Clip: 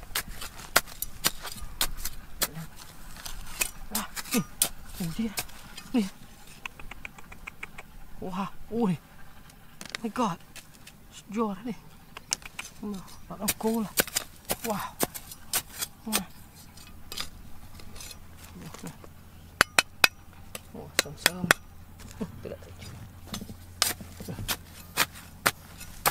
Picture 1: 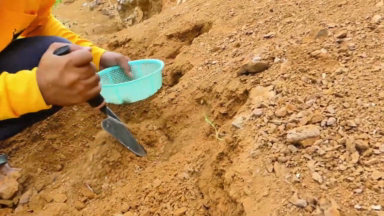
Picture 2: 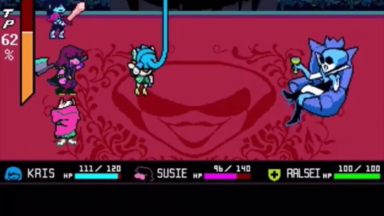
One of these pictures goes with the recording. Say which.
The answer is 1